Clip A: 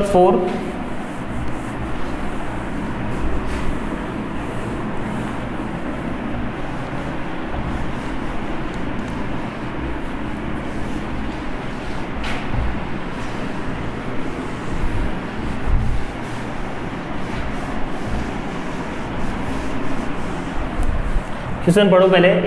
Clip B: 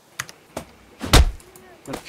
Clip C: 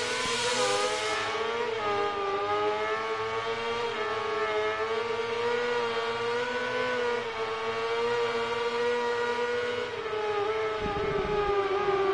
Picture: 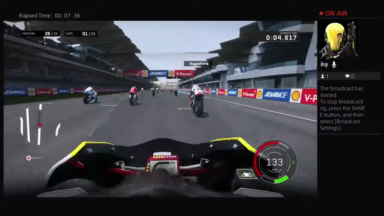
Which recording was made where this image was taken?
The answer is C